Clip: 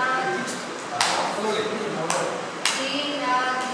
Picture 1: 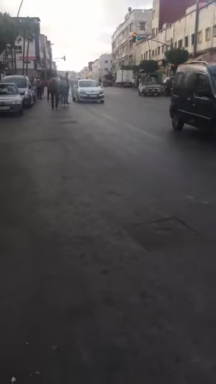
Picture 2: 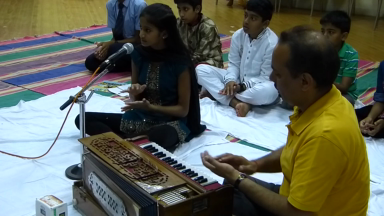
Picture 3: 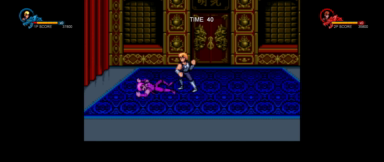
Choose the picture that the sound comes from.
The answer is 2